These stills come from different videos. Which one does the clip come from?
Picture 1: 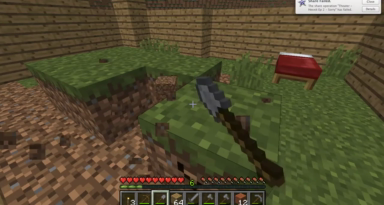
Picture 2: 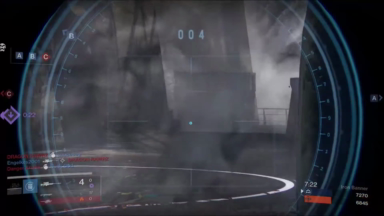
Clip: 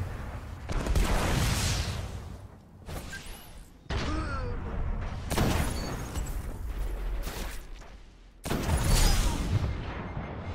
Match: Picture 2